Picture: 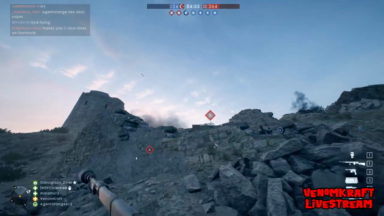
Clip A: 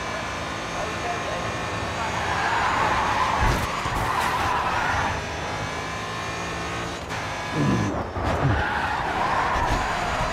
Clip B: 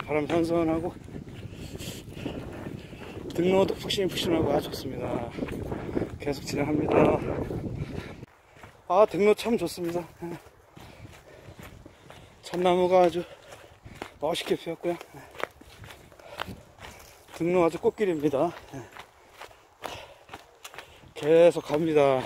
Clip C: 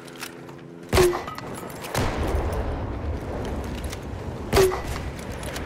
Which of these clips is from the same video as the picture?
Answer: C